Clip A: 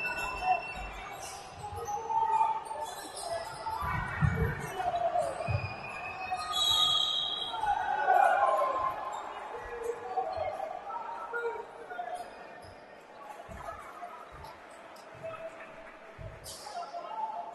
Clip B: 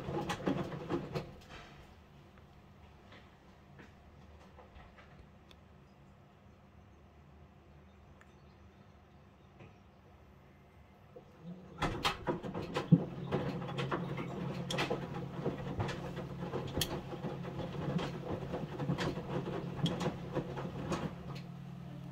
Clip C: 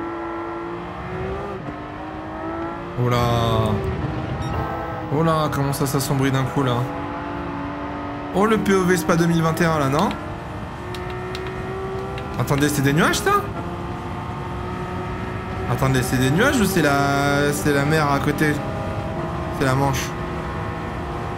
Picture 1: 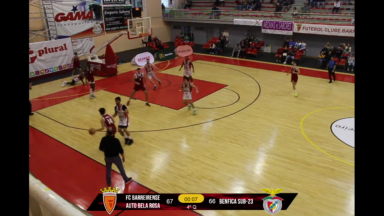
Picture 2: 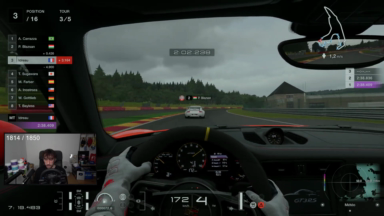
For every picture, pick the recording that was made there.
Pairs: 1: A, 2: C